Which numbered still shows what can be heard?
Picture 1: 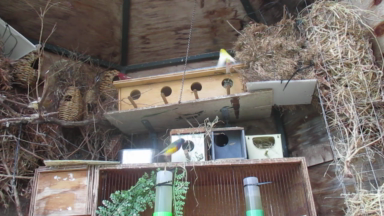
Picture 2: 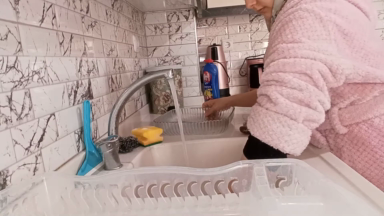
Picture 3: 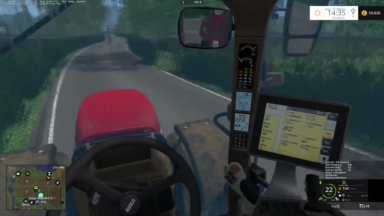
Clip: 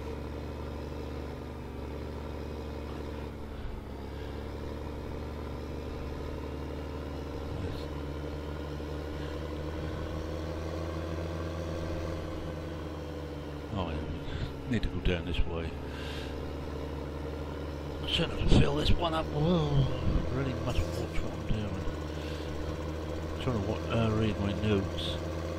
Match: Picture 3